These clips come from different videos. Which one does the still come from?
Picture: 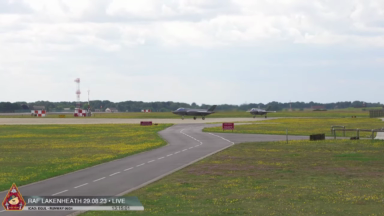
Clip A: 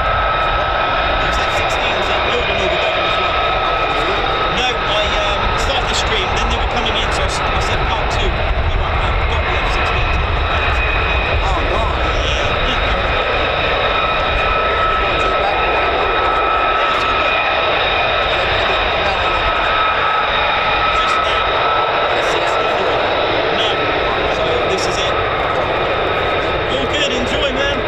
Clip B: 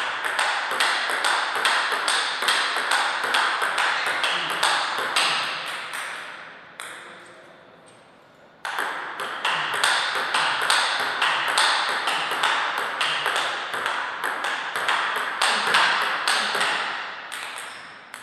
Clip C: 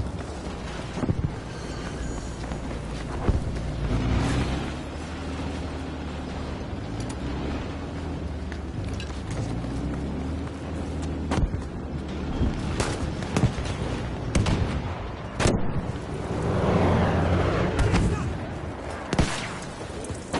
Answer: A